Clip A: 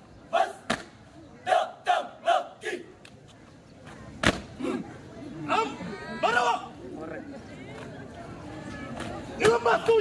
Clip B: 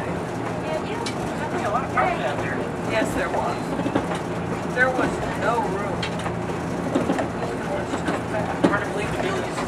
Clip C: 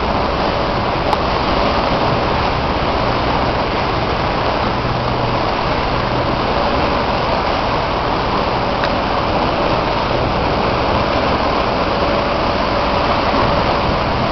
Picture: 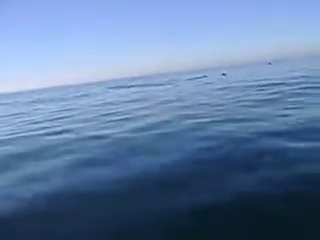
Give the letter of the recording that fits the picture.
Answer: C